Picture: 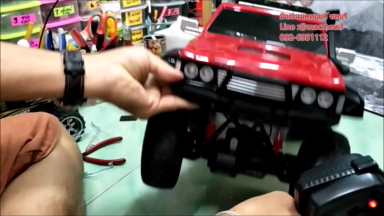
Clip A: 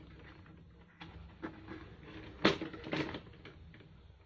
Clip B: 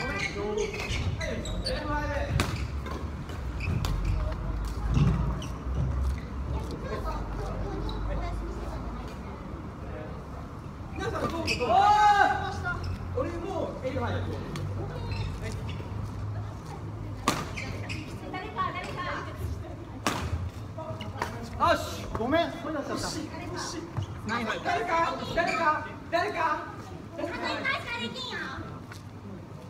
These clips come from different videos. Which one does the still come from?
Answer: A